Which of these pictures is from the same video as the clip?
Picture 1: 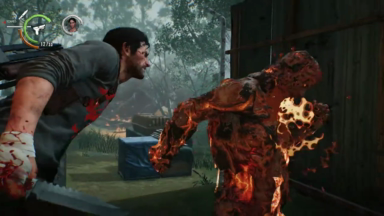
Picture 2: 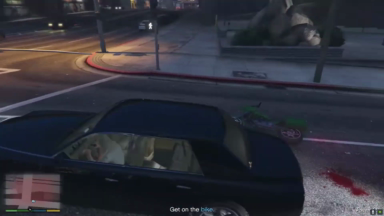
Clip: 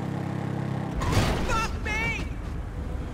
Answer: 2